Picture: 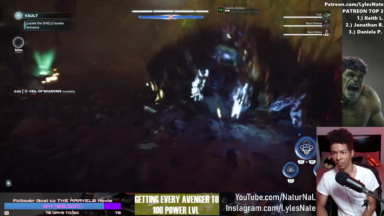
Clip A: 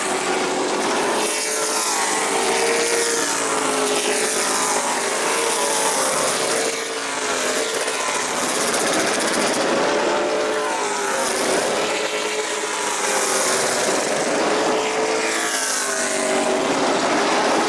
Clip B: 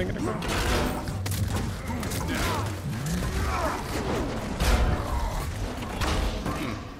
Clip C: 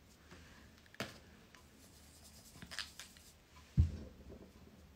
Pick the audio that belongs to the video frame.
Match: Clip B